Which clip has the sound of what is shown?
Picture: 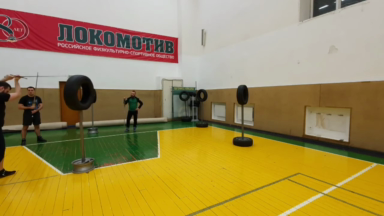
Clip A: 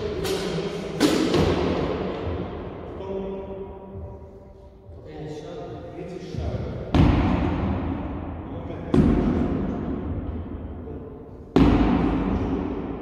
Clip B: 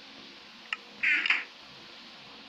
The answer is A